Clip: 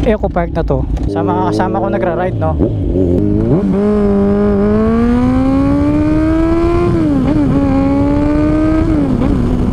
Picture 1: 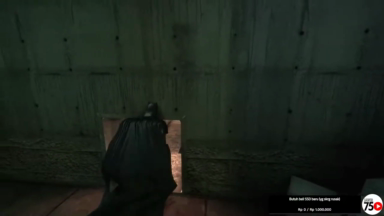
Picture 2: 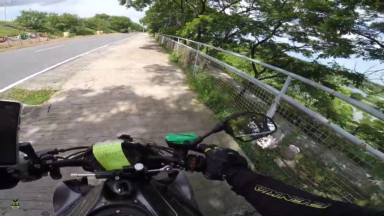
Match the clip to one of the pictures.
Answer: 2